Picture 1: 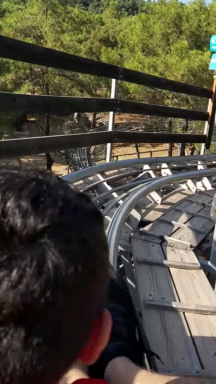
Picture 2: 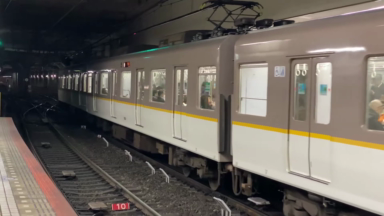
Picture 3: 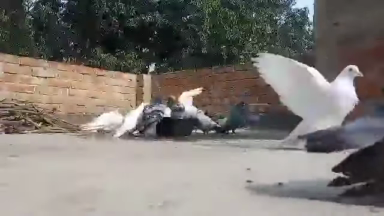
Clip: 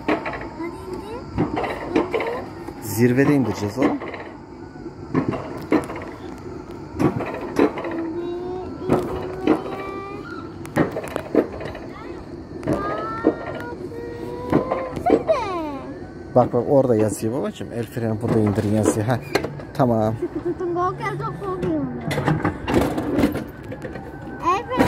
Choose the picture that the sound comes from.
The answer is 1